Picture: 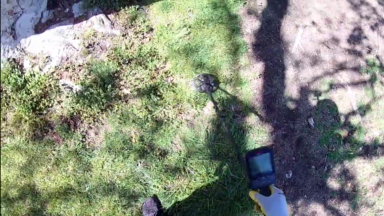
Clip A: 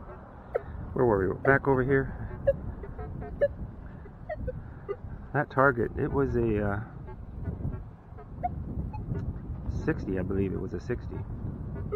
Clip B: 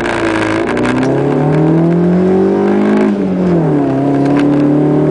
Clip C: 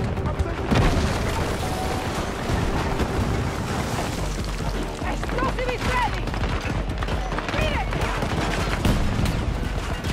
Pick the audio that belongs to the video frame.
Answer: A